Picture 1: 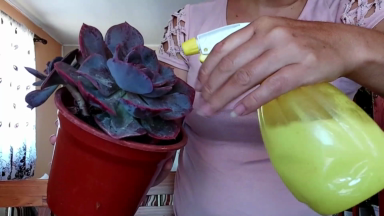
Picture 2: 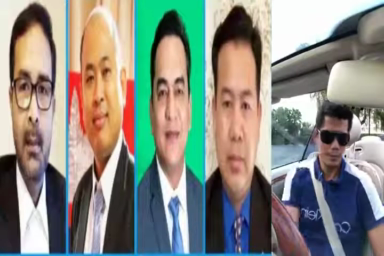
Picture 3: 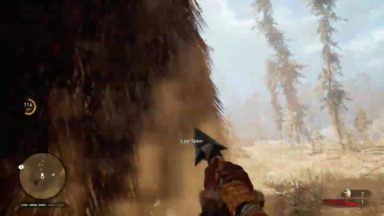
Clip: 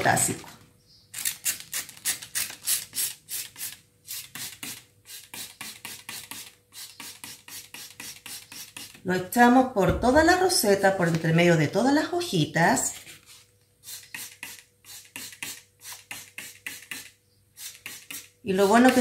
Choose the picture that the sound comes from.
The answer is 1